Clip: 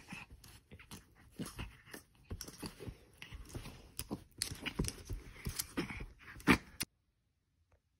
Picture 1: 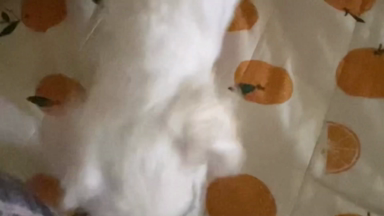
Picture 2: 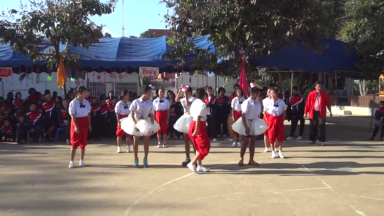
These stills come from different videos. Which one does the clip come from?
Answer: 1